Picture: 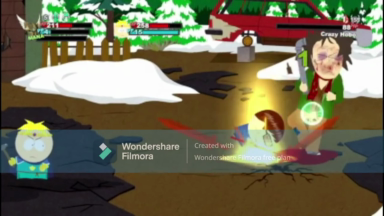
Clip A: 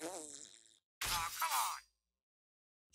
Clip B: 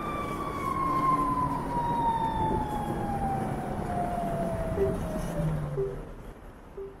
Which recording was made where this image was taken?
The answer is A